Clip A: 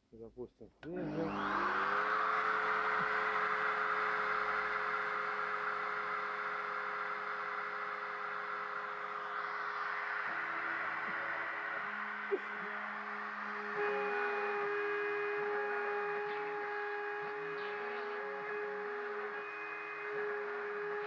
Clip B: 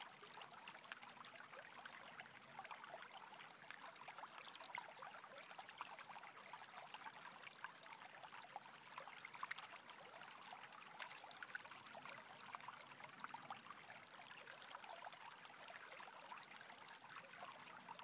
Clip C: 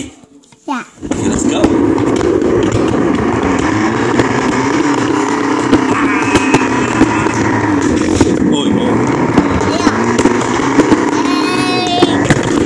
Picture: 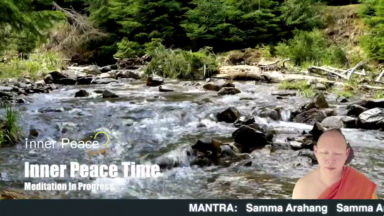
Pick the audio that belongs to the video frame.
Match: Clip B